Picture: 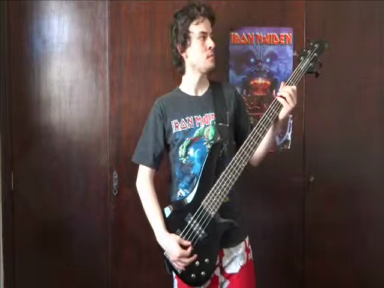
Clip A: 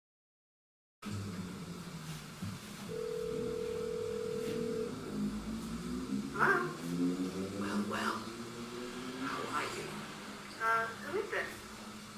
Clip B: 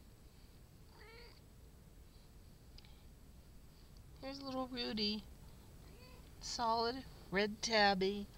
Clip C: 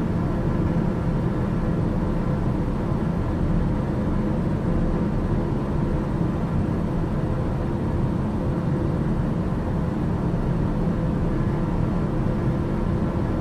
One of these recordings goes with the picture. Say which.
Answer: A